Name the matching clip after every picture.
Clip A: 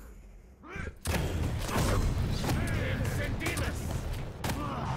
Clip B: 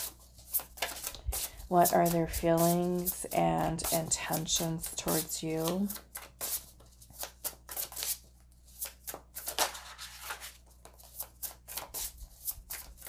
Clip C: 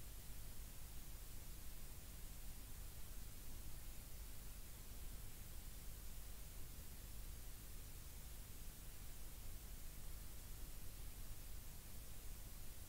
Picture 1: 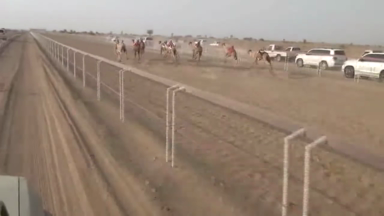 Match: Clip C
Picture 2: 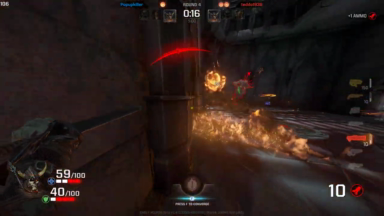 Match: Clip A